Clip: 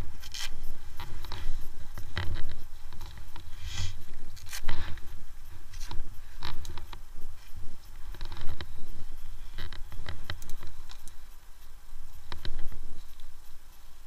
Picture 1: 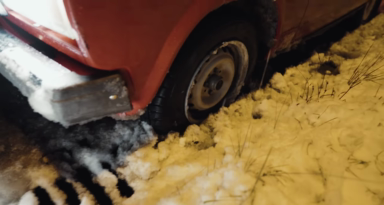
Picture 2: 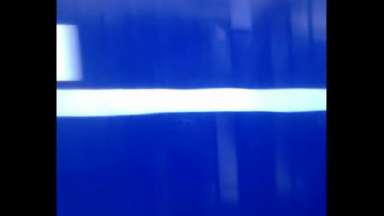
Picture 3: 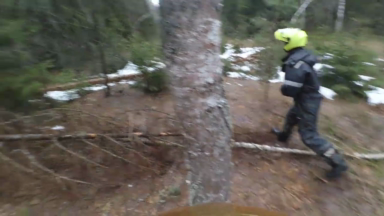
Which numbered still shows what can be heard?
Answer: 3